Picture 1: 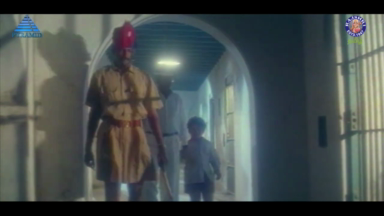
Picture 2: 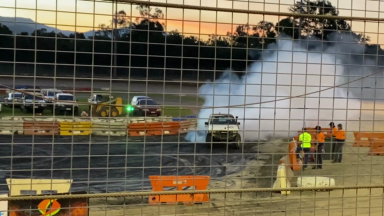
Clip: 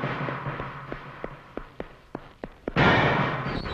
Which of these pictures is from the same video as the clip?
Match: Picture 1